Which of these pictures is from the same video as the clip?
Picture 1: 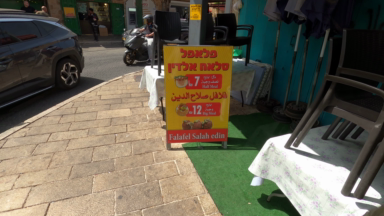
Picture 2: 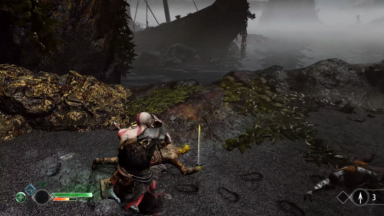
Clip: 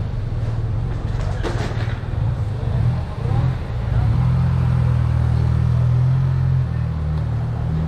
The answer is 1